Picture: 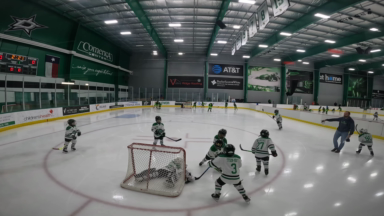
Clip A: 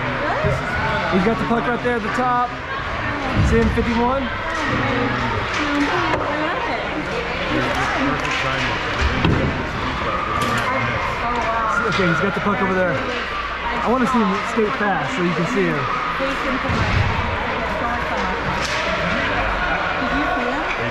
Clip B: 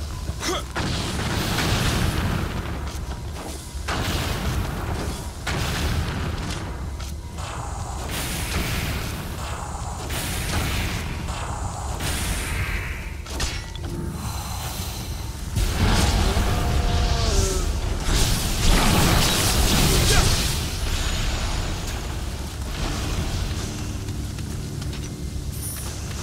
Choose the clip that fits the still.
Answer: A